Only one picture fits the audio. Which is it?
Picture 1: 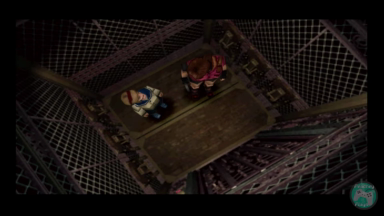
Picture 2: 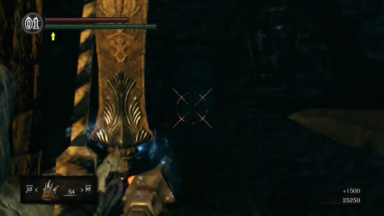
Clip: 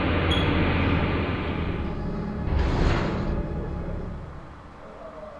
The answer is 1